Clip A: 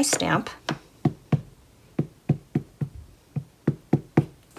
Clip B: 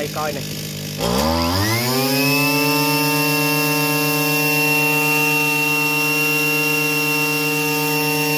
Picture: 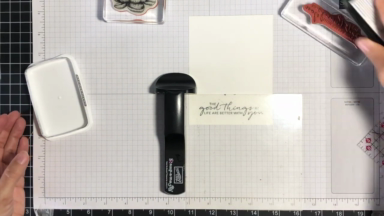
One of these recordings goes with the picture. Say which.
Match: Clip A